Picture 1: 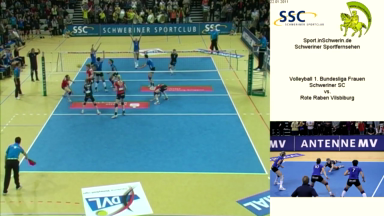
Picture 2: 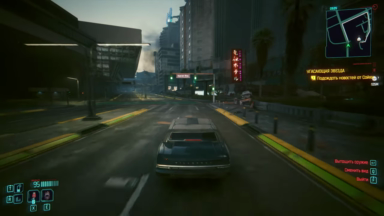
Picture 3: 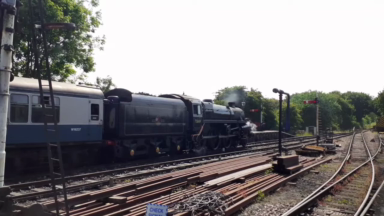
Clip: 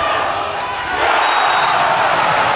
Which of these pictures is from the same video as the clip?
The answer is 1